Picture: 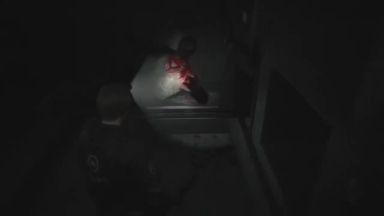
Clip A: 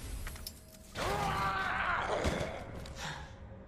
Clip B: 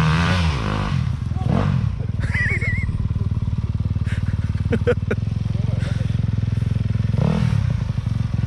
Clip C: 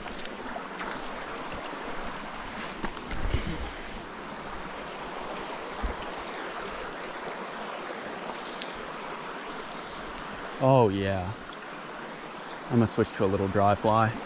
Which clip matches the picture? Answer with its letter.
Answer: A